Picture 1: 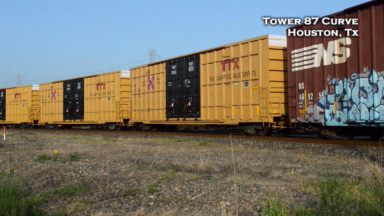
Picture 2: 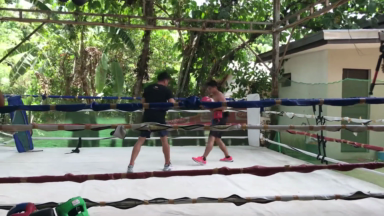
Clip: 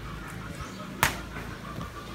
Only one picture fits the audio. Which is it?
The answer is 2